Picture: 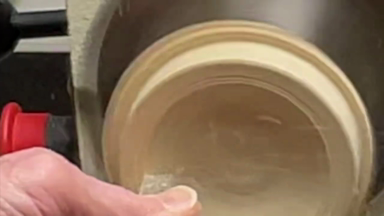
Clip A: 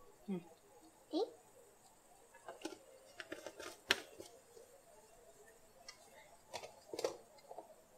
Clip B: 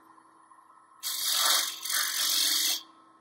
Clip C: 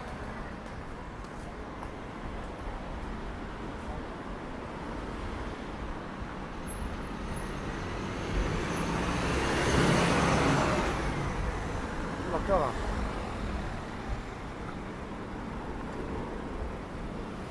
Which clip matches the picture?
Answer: B